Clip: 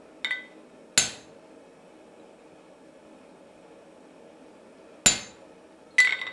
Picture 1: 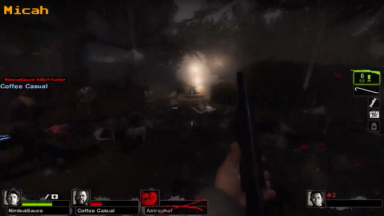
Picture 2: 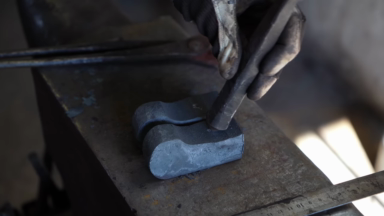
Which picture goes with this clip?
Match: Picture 2